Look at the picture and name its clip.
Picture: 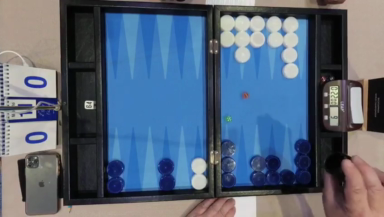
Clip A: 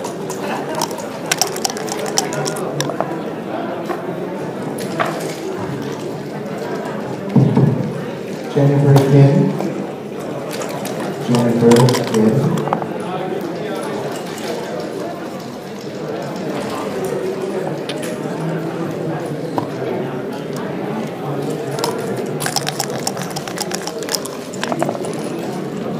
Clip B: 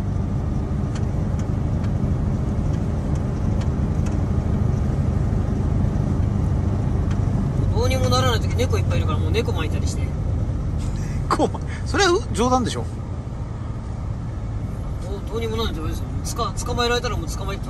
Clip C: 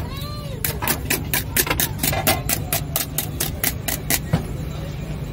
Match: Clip A